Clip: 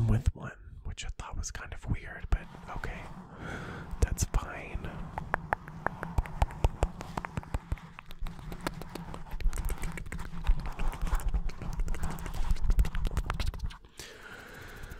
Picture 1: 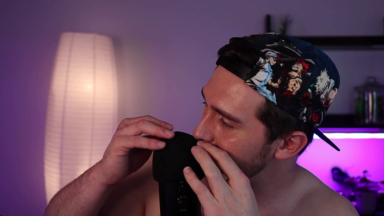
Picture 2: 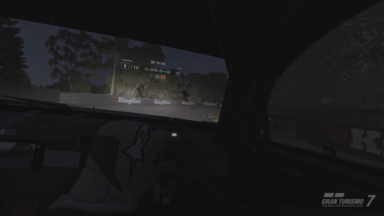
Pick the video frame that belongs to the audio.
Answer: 1